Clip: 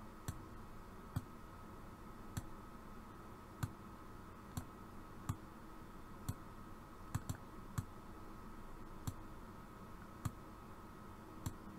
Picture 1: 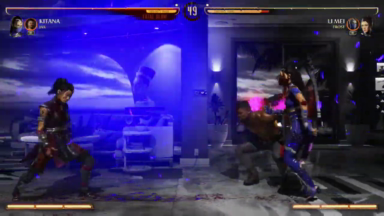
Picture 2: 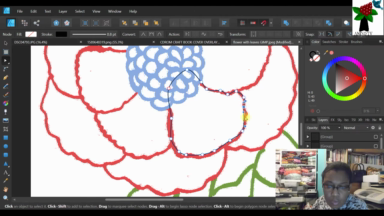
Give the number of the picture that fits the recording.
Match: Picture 2